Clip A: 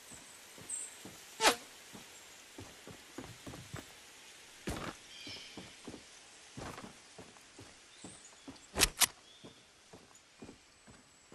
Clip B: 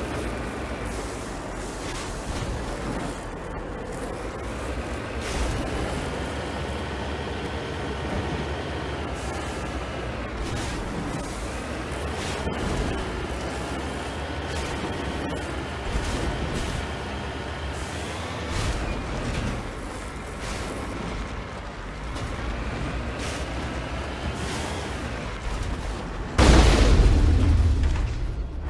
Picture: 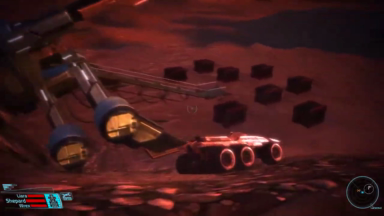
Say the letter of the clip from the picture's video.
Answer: B